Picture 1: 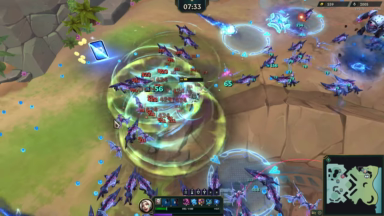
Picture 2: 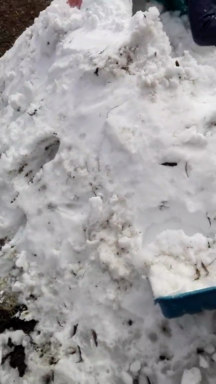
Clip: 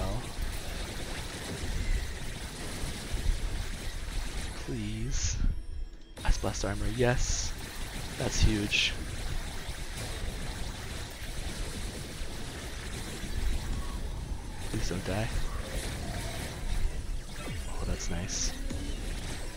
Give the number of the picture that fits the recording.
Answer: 1